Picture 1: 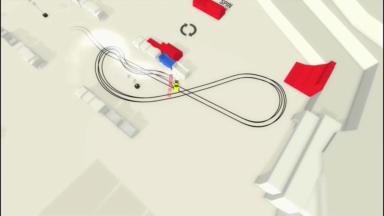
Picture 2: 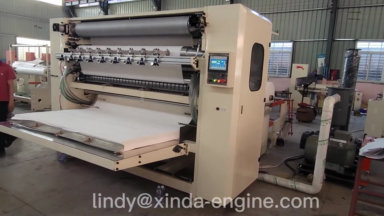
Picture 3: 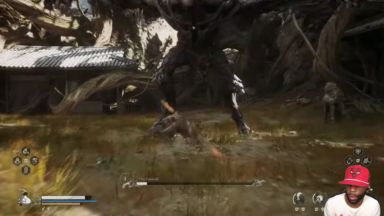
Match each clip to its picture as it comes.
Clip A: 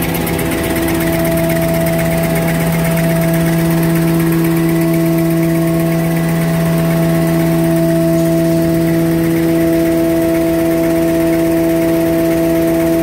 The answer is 2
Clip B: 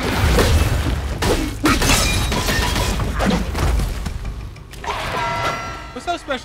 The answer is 3